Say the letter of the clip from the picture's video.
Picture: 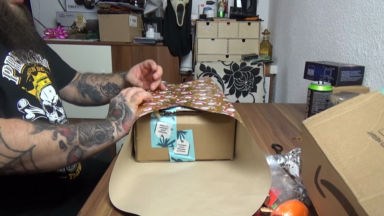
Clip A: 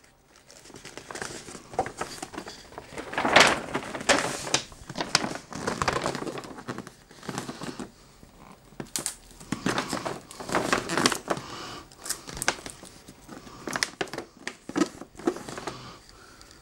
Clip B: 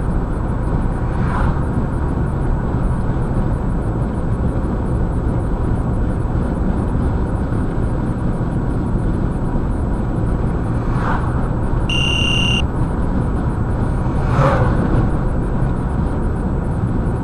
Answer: A